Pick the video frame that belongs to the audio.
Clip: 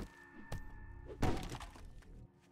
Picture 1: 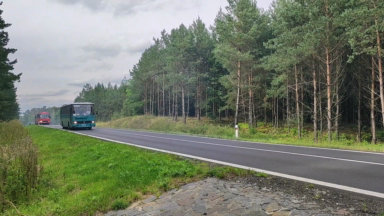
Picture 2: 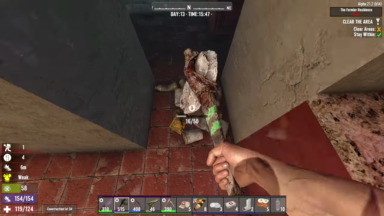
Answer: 2